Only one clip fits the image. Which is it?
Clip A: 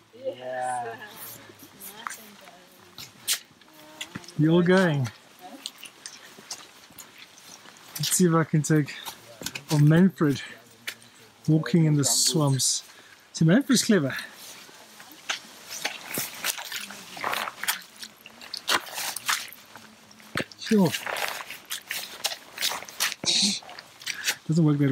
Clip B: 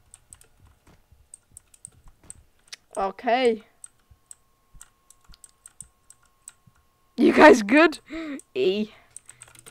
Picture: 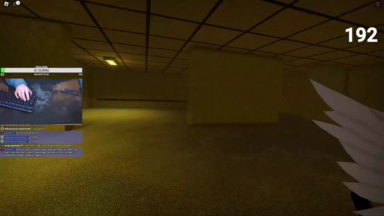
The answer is B